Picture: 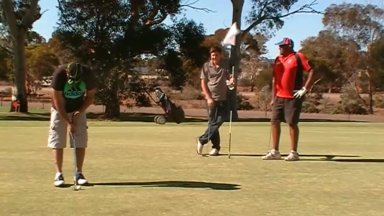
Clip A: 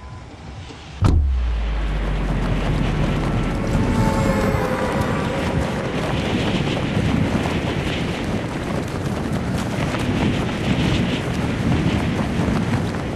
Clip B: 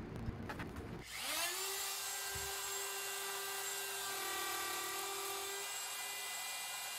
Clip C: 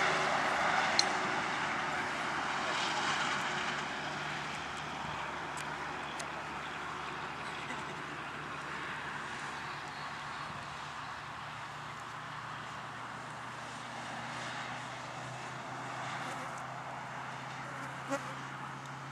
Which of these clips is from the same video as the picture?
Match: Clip C